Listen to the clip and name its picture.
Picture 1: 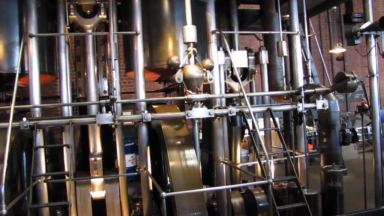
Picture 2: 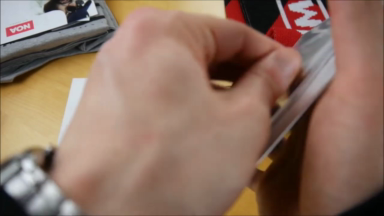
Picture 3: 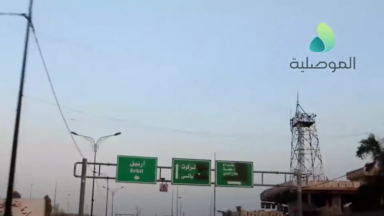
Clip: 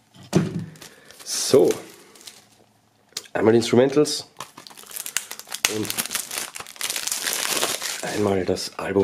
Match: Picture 2